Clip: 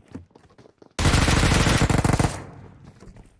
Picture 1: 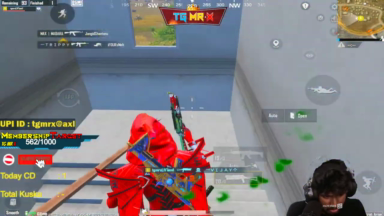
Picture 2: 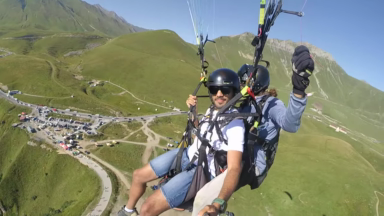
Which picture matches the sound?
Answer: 1